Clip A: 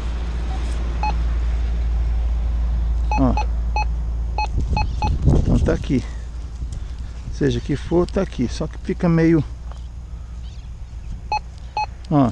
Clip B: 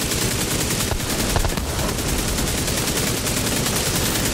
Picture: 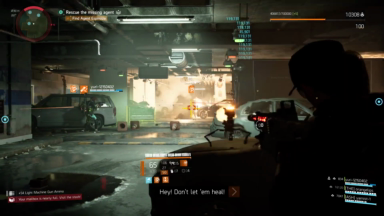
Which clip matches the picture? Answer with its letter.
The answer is B